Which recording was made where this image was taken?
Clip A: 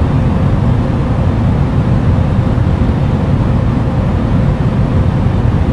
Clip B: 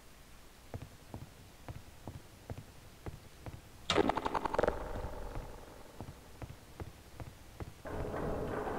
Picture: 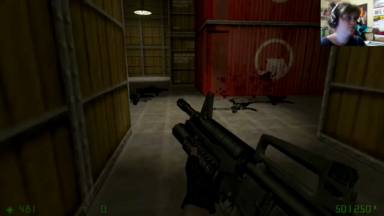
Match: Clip B